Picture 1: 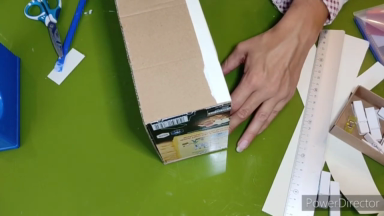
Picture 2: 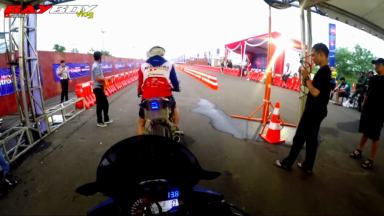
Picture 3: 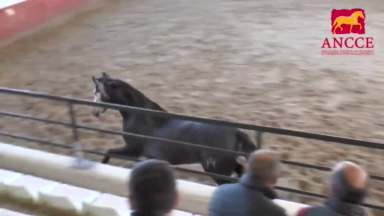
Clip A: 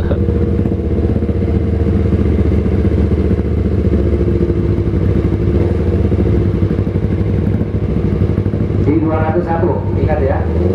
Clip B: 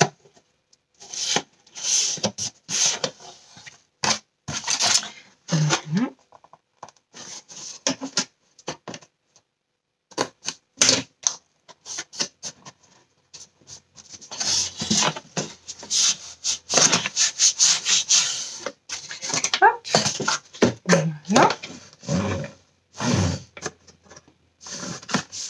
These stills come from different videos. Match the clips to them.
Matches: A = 2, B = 1